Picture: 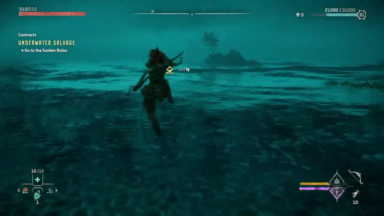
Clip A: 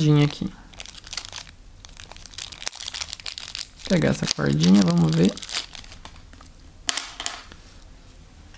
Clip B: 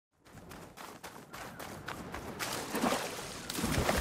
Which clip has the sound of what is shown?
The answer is B